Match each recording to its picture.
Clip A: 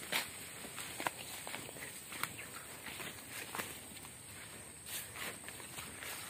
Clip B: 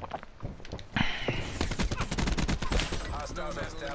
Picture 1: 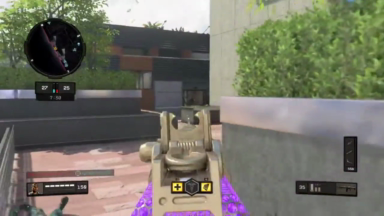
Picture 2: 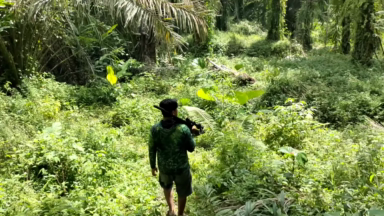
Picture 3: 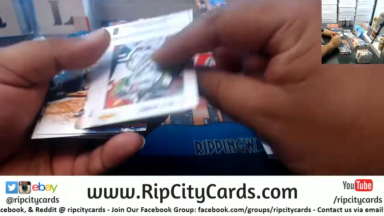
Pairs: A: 2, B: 1